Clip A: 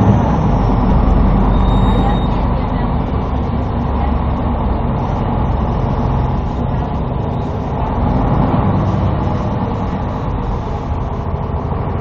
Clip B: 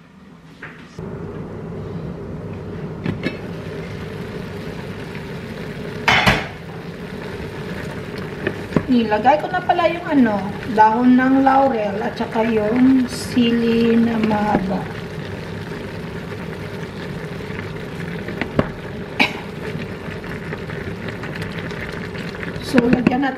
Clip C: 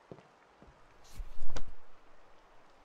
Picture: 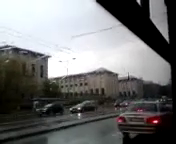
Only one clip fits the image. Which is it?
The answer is A